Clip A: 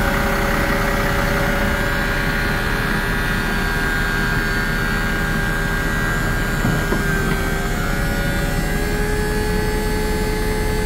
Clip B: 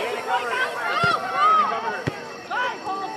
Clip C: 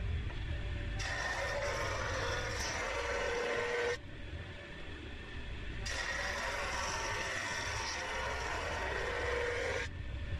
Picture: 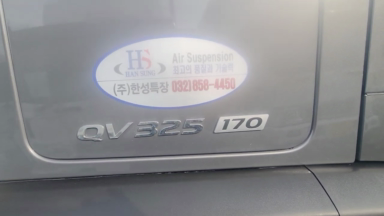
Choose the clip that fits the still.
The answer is A